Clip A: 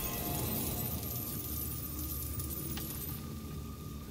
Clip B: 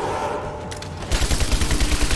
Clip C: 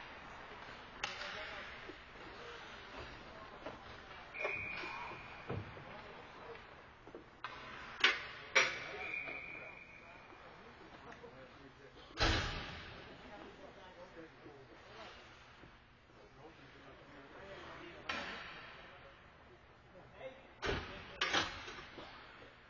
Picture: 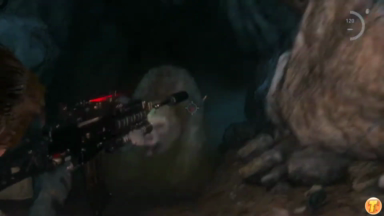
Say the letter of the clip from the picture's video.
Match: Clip B